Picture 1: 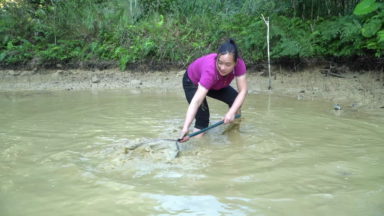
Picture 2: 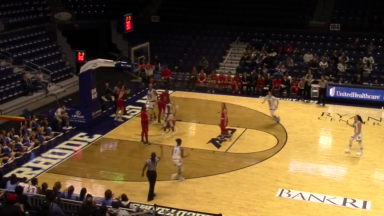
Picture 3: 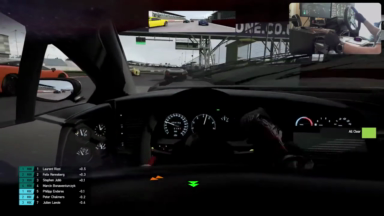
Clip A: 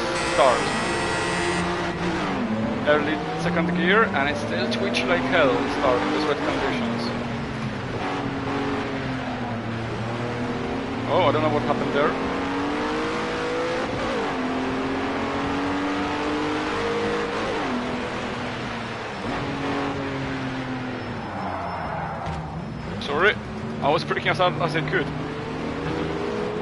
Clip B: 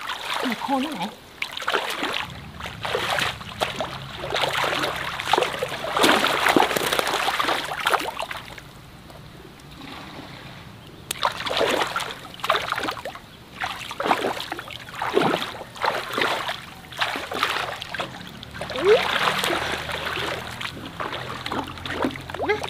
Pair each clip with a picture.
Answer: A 3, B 1